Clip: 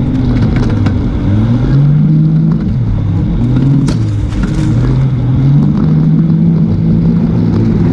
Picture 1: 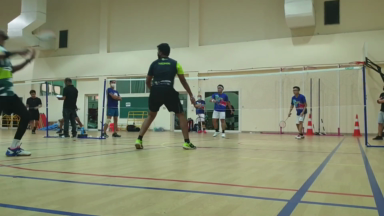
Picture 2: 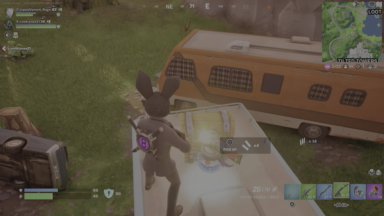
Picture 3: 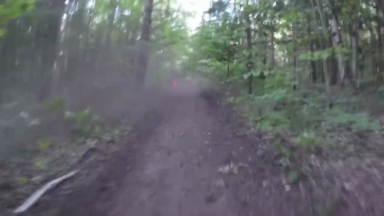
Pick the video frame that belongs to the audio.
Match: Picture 3